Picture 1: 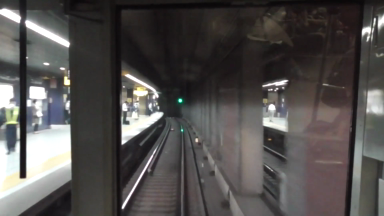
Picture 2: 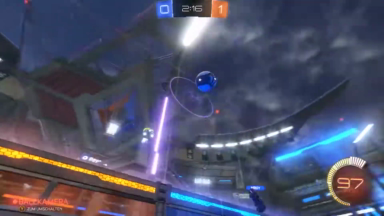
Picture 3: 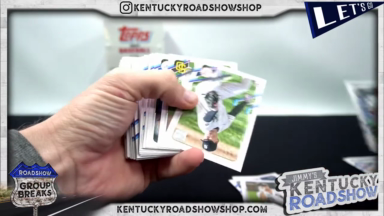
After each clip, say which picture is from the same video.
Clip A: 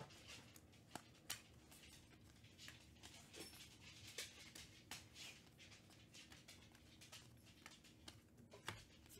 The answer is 3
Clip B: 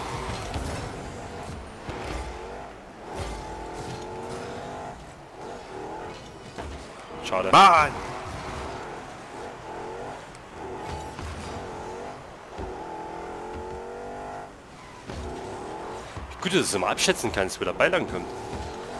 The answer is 2